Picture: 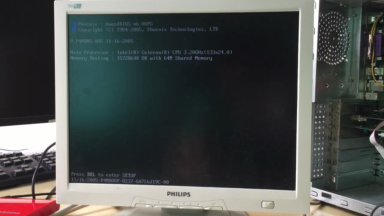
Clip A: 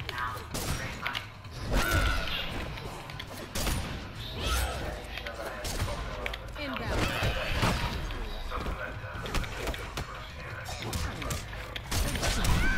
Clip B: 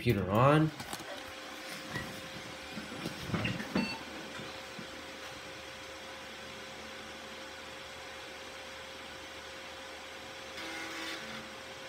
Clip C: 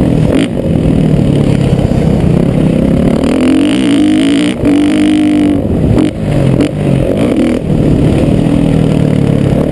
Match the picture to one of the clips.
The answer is B